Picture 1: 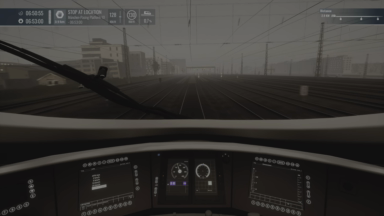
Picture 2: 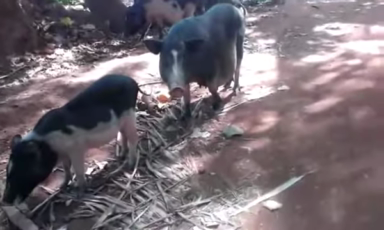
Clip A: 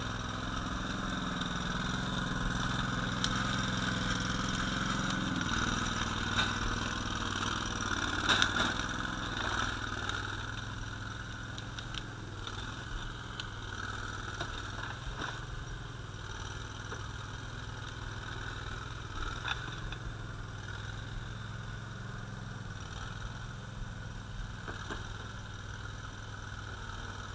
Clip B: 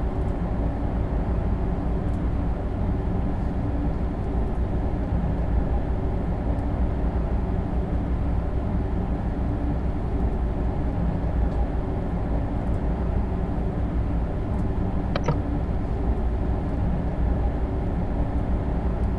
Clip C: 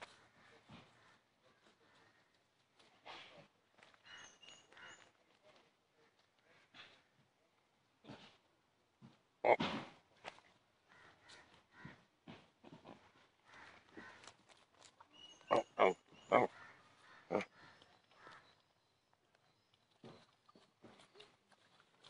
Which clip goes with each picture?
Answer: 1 B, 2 C